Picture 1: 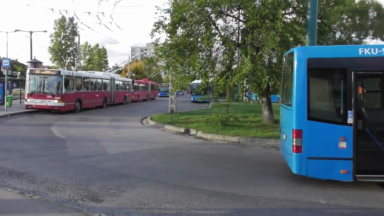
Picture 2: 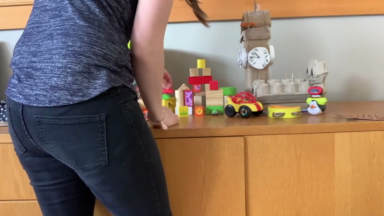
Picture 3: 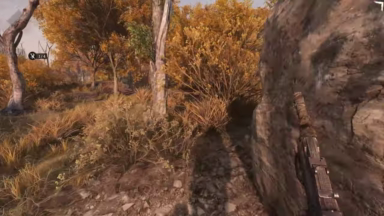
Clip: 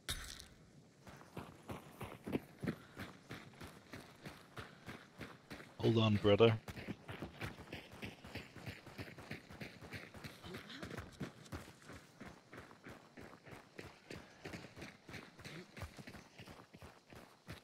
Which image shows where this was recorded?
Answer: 3